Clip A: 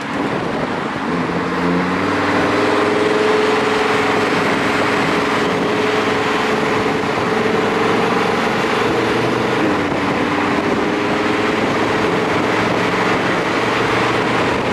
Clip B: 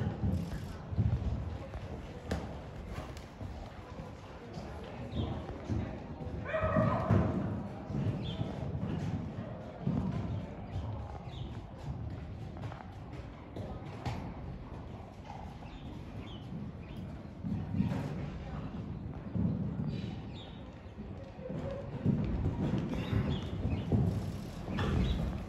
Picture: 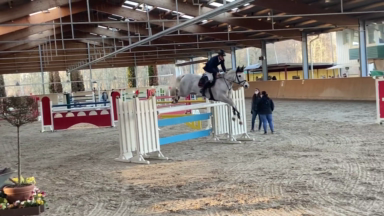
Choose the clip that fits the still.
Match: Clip B